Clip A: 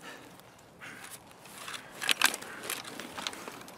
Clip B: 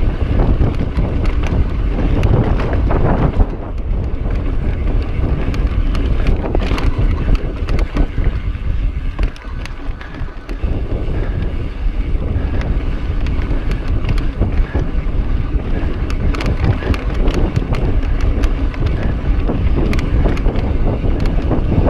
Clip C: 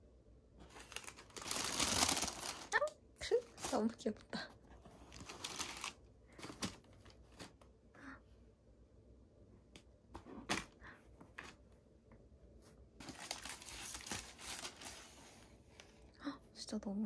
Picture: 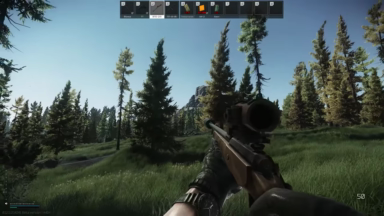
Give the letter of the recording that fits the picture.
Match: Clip A